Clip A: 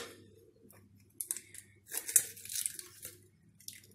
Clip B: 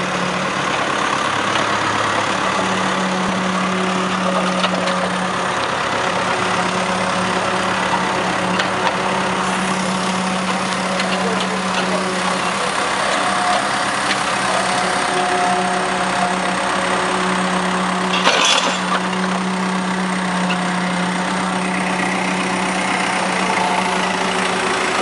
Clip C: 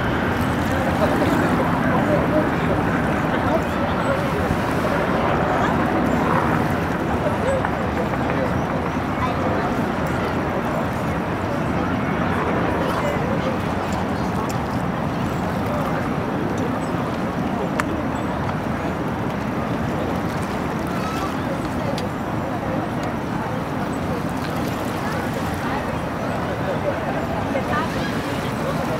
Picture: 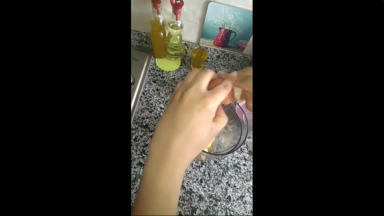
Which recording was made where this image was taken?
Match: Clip A